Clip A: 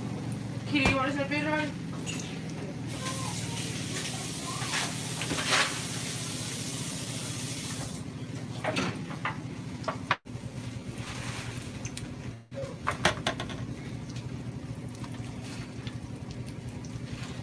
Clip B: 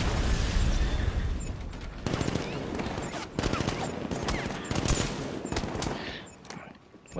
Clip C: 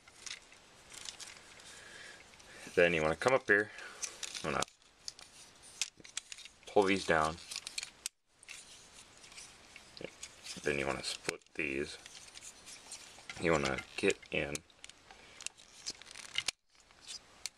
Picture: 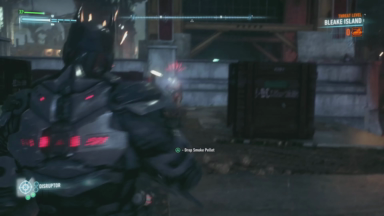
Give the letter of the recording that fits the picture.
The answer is B